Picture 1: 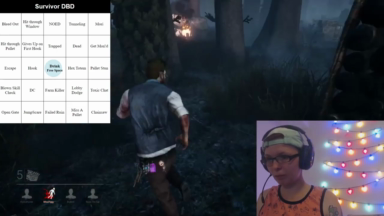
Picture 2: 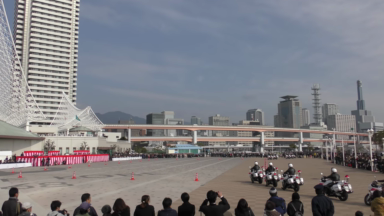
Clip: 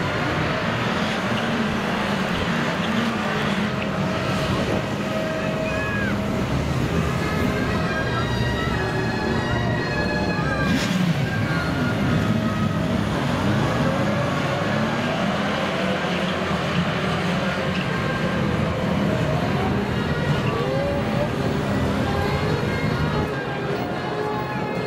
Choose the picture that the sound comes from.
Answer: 2